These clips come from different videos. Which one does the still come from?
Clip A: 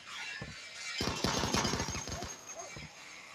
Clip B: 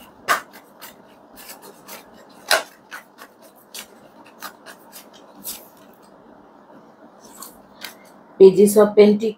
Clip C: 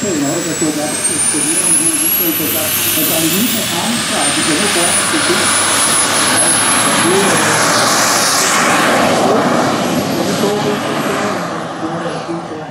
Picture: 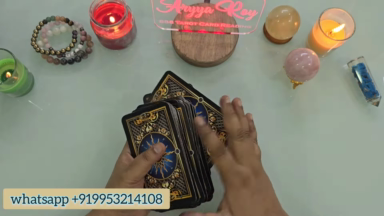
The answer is B